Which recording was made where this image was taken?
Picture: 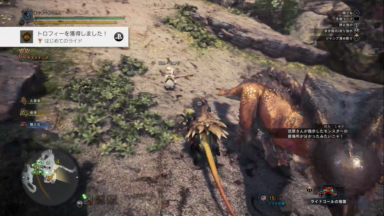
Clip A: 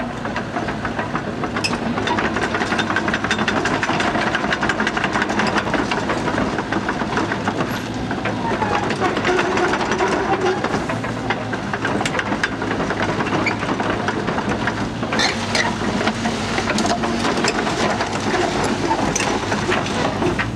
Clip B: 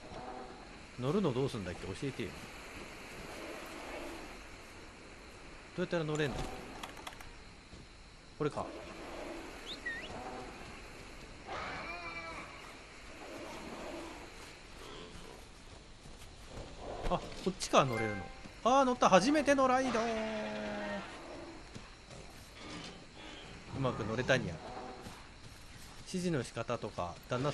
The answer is B